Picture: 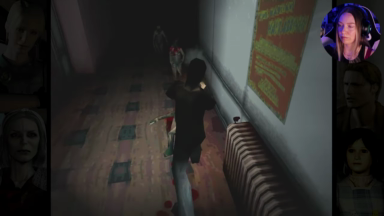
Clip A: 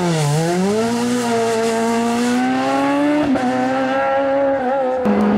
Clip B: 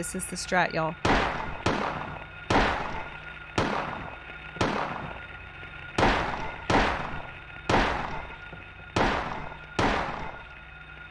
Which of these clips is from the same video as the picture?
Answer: B